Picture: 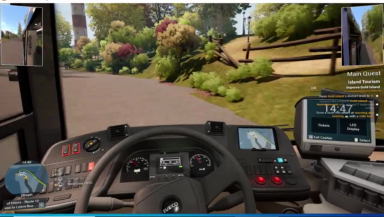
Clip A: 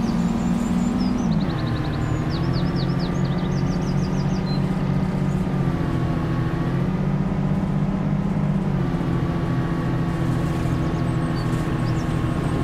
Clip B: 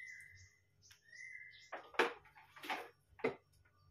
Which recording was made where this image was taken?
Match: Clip A